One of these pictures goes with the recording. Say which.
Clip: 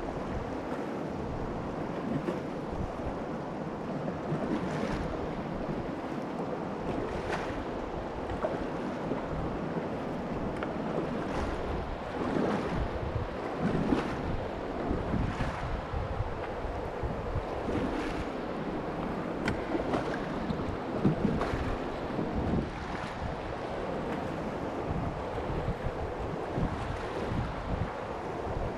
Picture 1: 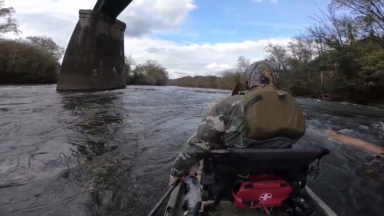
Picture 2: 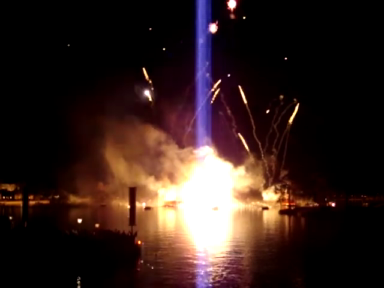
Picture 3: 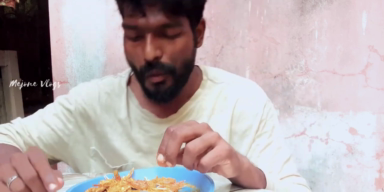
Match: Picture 1